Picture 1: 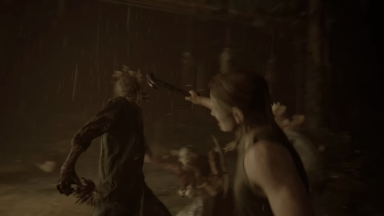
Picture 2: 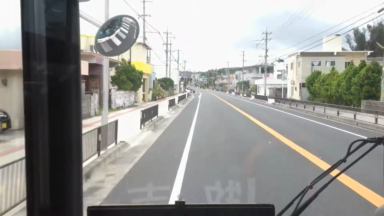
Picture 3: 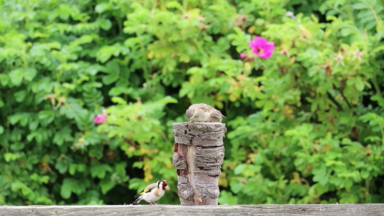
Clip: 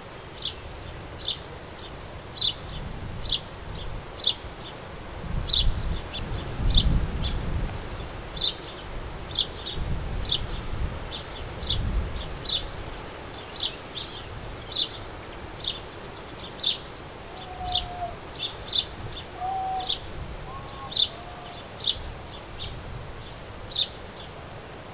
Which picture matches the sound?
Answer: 3